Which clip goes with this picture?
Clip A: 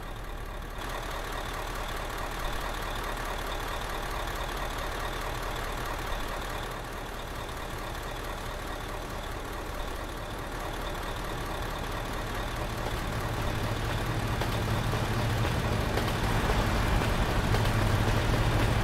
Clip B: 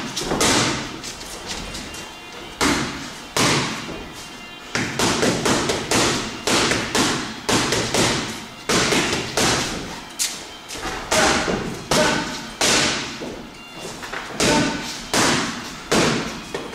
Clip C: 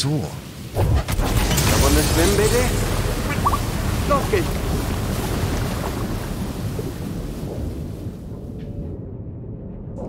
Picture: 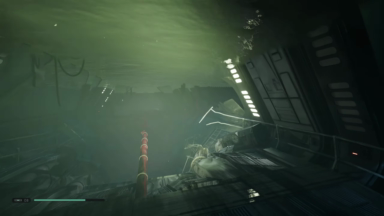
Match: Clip C